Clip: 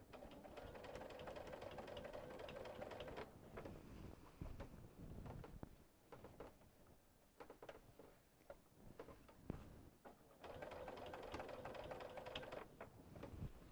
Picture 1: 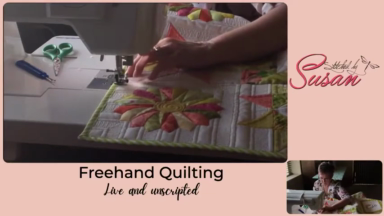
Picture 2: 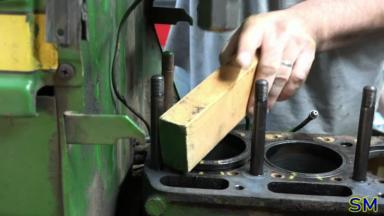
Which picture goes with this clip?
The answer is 1